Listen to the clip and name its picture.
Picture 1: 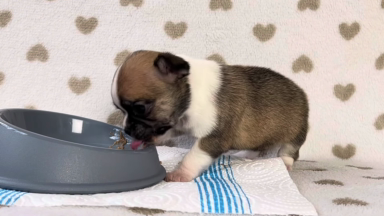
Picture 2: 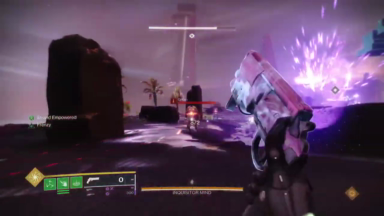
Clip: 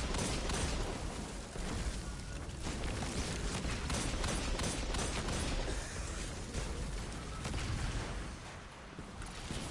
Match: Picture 2